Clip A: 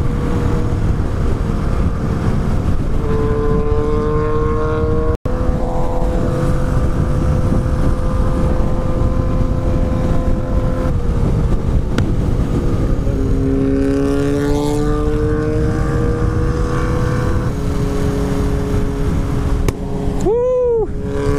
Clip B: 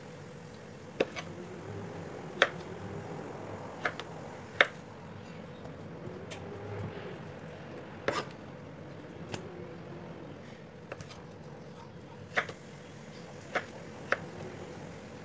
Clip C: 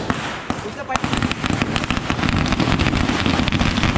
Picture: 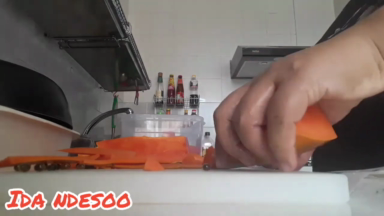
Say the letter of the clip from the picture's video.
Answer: B